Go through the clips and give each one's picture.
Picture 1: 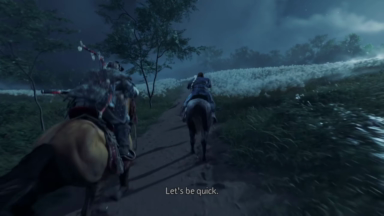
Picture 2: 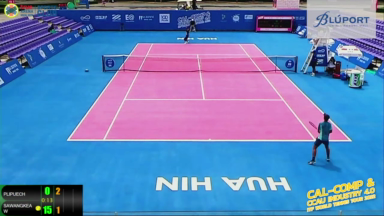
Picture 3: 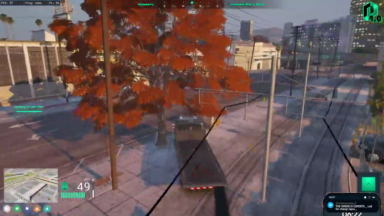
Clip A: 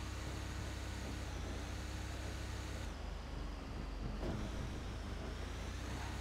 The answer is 3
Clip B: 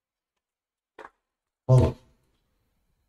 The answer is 2